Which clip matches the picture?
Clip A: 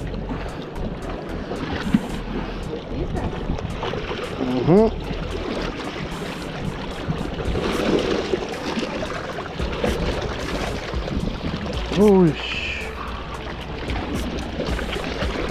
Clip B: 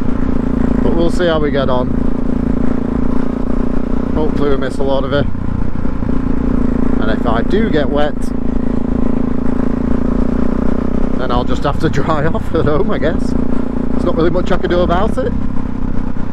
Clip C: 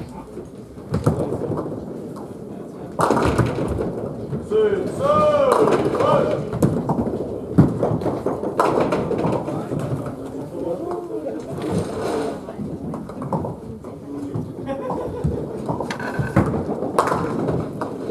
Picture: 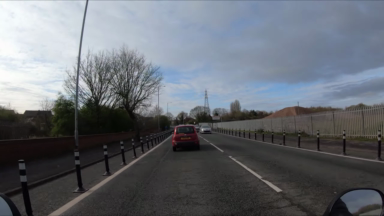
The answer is B